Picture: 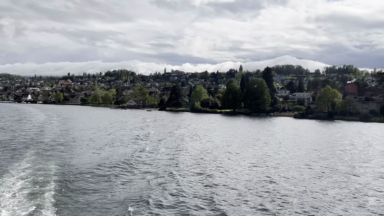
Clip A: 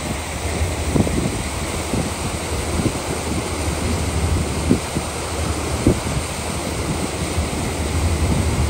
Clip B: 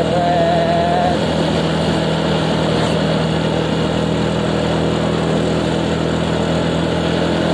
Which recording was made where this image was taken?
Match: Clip A